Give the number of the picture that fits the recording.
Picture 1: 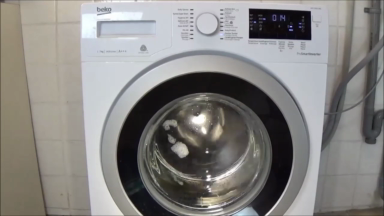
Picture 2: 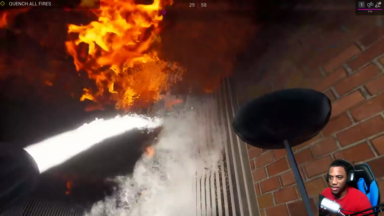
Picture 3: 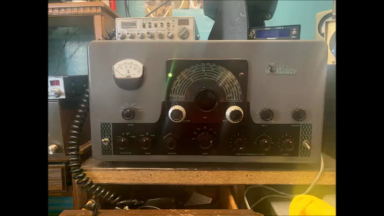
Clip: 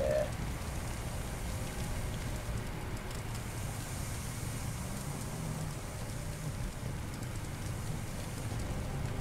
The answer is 2